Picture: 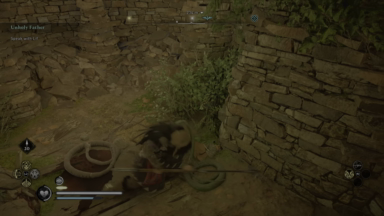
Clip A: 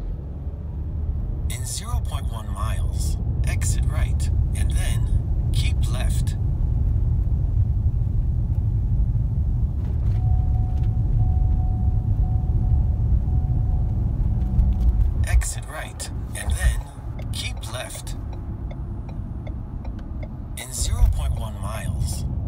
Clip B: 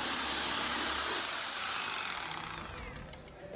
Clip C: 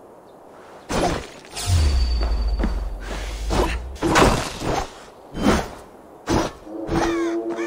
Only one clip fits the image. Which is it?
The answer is C